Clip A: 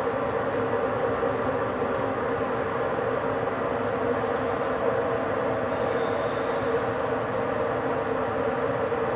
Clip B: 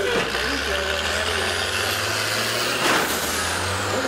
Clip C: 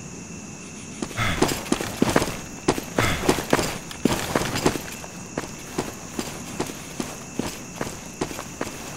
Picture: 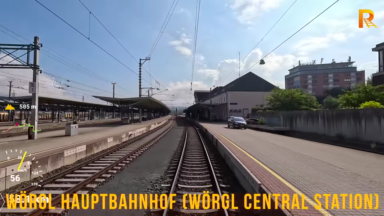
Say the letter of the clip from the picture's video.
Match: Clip A